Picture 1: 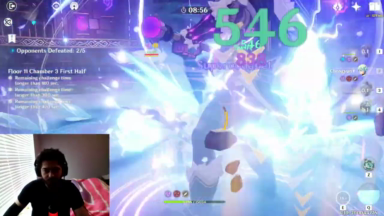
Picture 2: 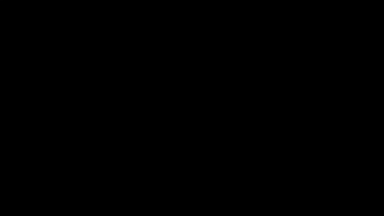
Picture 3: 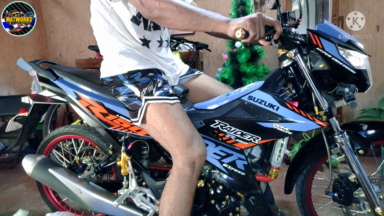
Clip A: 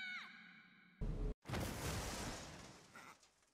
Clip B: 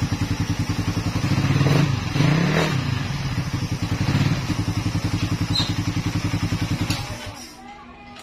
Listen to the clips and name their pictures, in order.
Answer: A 2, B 3